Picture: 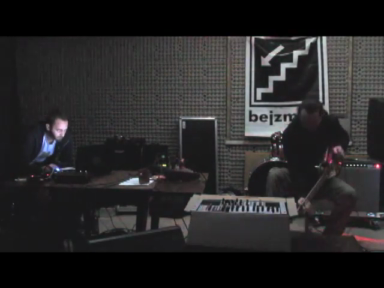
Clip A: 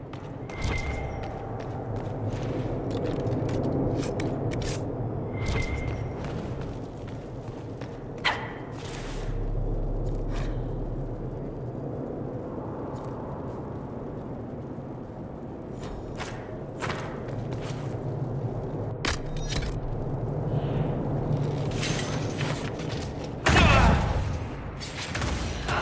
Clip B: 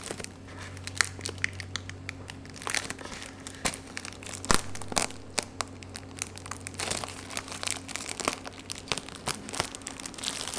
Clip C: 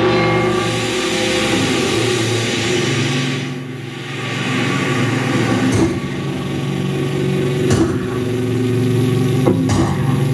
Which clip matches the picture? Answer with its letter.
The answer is C